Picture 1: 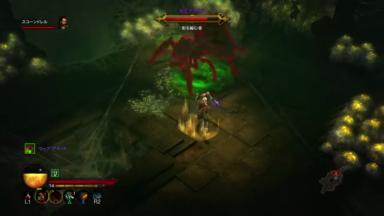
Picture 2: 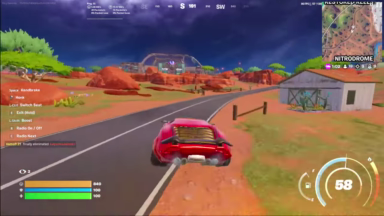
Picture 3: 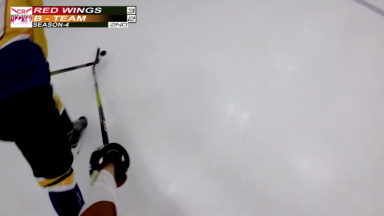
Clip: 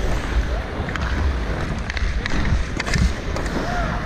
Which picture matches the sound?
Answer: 3